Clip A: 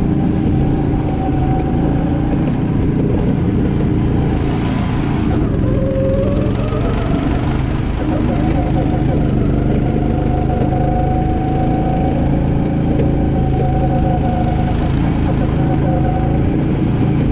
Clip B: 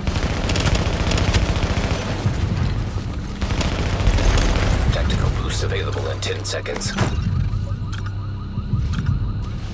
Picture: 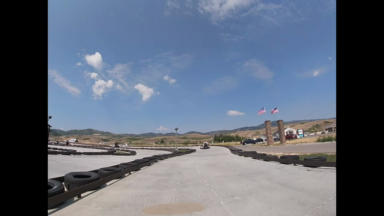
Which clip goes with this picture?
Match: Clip A